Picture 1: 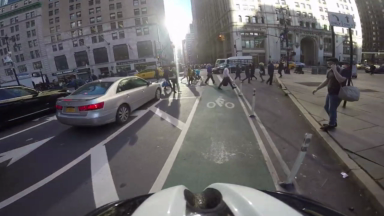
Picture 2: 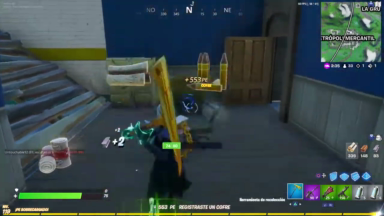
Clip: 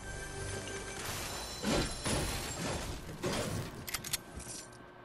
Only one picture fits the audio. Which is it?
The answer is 2